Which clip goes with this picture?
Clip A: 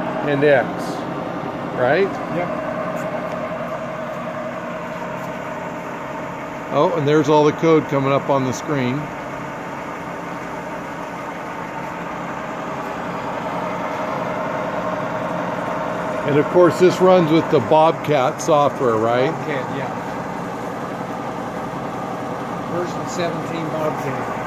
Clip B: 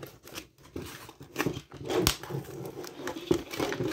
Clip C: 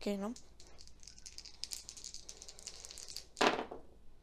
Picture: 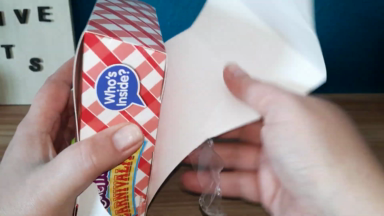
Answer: B